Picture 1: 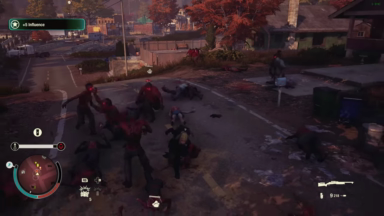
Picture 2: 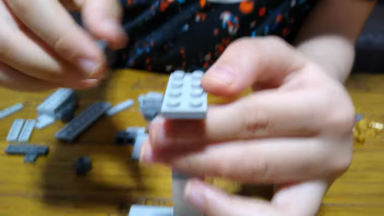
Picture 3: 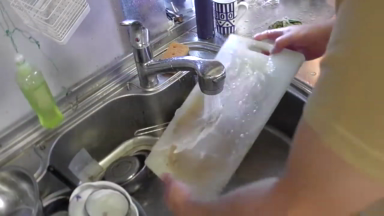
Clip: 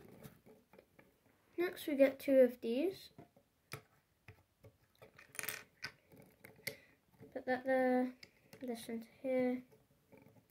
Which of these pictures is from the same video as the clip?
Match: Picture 2